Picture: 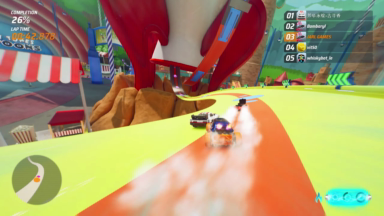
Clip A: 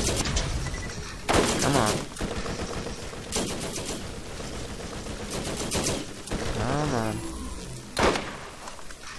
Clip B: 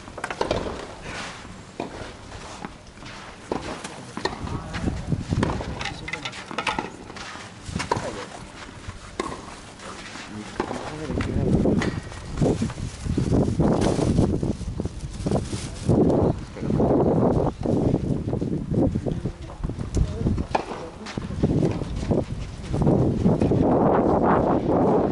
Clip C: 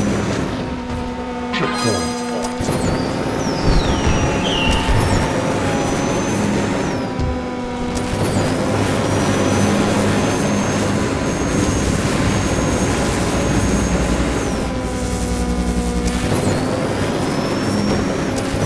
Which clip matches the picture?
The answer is C